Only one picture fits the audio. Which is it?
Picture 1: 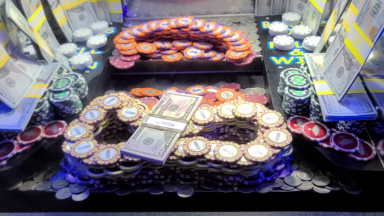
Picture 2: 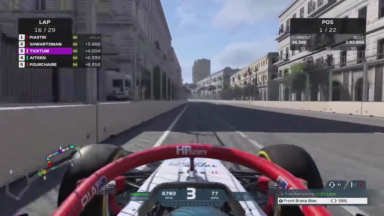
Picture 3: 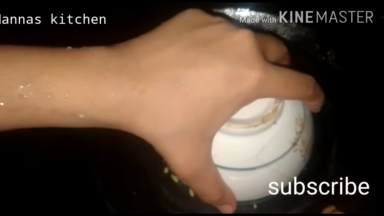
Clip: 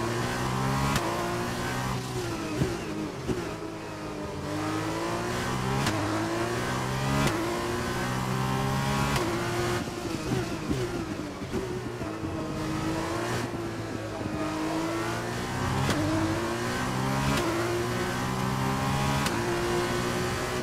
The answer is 2